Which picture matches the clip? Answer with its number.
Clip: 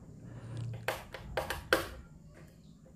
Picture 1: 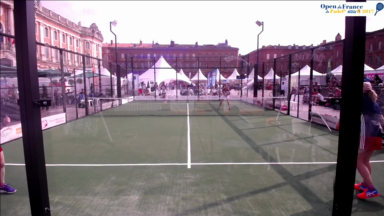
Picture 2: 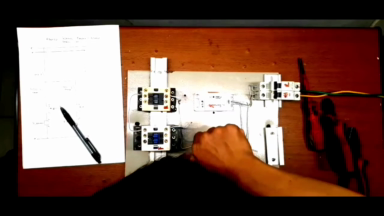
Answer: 2